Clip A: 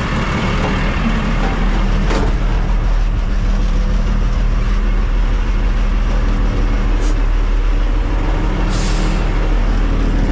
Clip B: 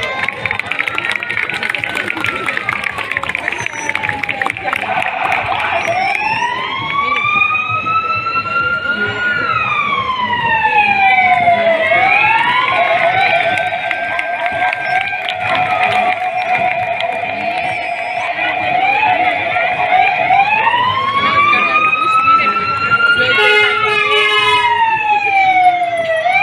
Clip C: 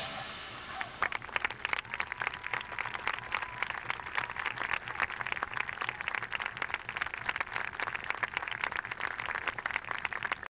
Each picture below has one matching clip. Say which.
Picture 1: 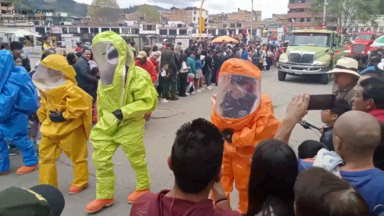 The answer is B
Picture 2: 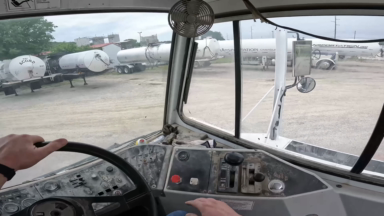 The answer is A